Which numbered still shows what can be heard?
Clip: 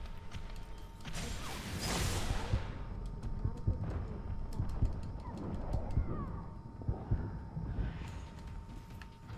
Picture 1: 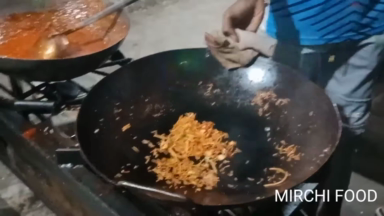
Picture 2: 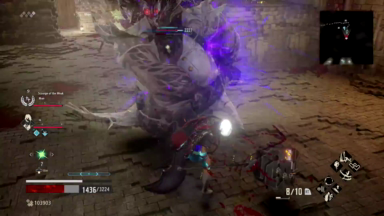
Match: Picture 2